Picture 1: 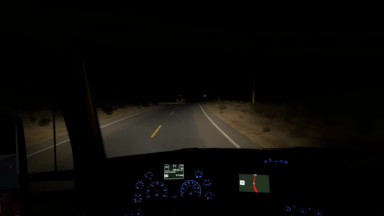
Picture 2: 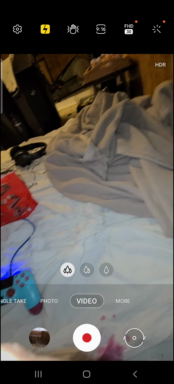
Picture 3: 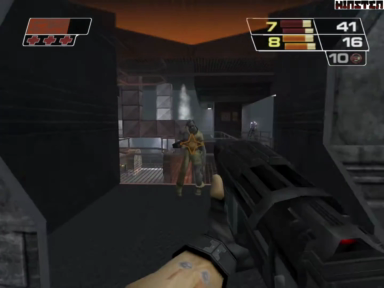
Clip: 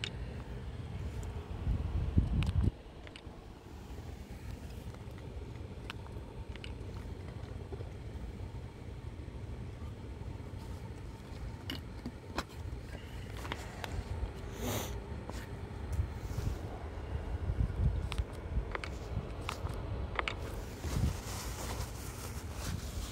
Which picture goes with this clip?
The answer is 2